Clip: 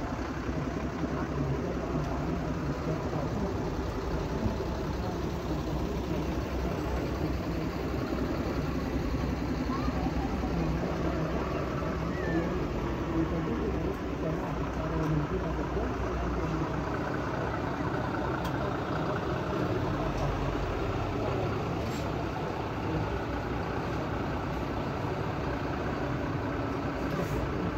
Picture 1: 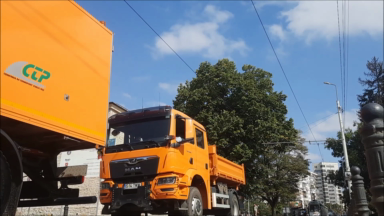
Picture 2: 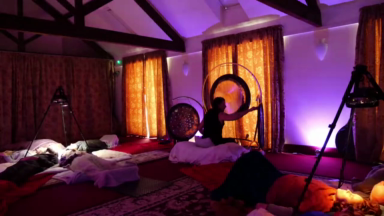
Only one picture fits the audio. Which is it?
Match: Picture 1